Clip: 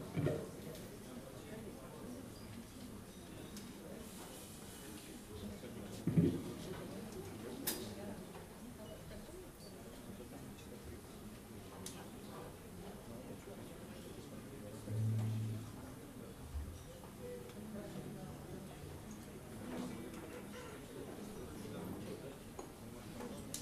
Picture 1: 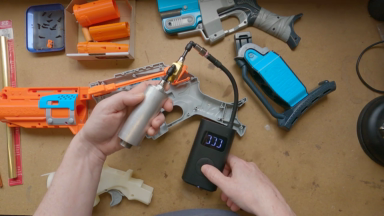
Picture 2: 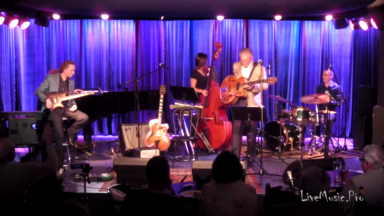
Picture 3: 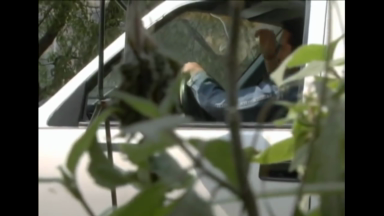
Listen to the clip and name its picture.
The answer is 2